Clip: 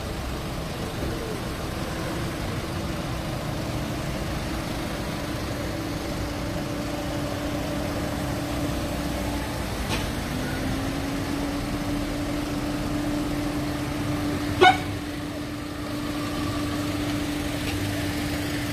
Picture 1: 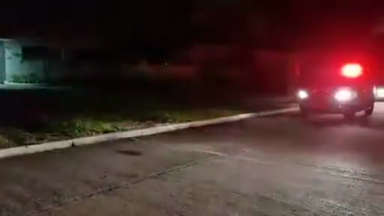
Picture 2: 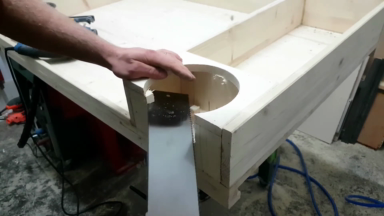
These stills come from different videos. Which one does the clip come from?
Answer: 1